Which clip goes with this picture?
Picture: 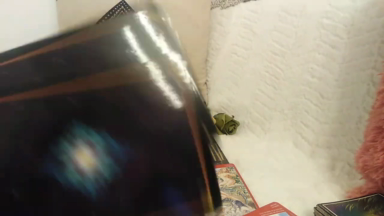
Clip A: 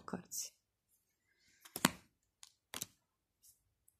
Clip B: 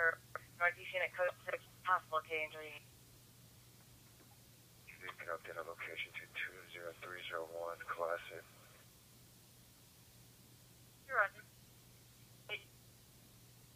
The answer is A